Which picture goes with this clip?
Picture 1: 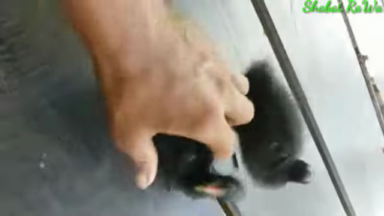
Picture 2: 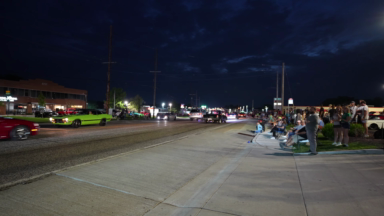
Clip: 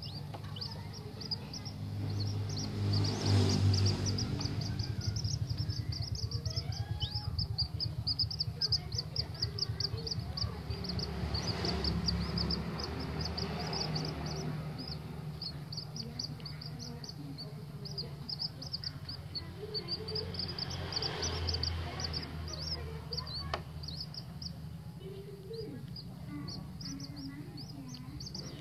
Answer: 1